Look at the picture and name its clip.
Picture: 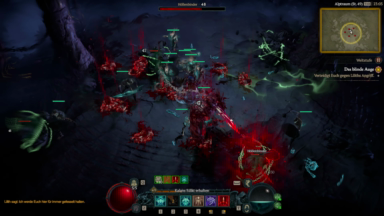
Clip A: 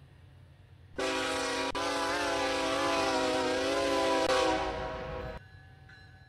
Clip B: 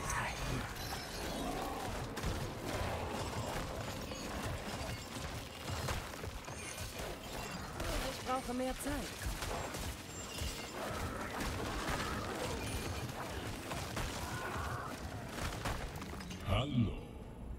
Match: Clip B